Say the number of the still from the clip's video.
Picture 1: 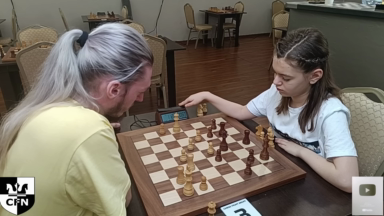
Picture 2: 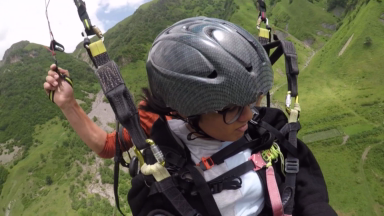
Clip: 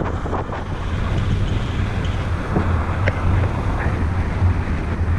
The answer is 2